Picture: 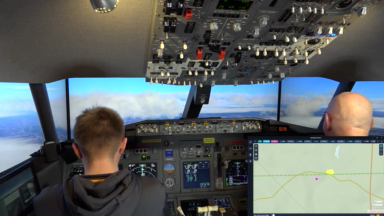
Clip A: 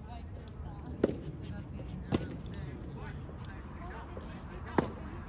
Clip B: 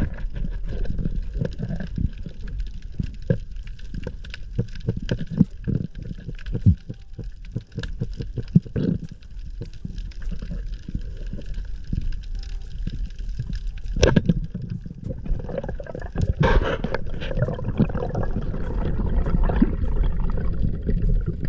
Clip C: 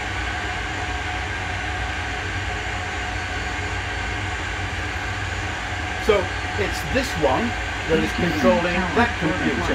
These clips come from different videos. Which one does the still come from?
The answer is C